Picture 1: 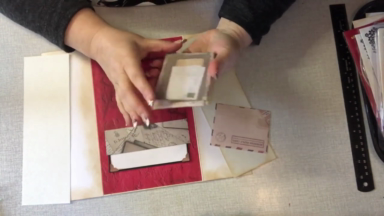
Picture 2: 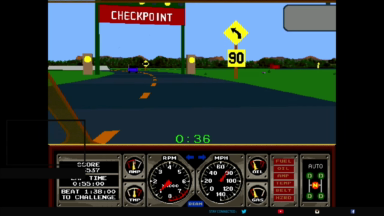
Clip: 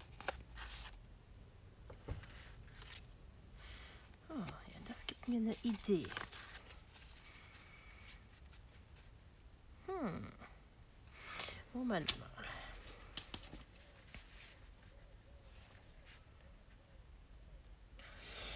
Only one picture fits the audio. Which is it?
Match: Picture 1